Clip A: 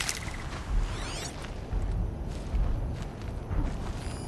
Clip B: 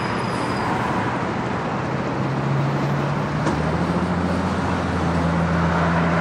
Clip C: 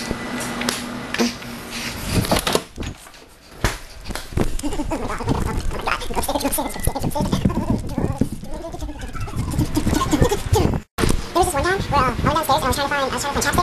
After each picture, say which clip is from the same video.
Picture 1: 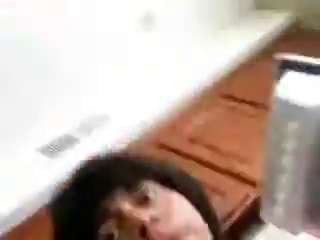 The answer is C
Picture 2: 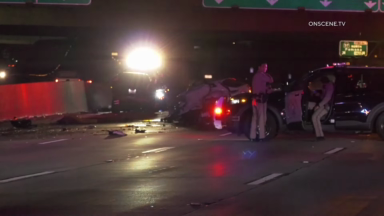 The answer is B